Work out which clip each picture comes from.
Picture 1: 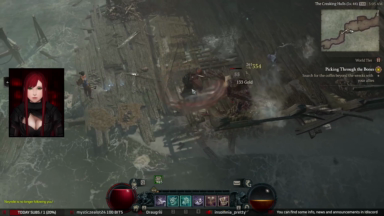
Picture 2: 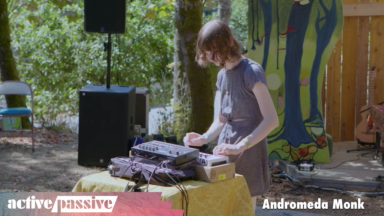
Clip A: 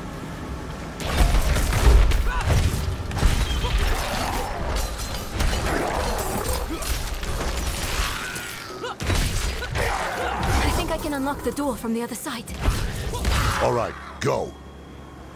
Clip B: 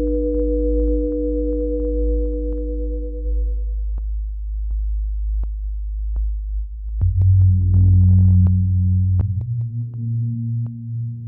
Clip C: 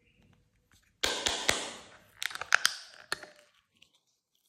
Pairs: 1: A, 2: B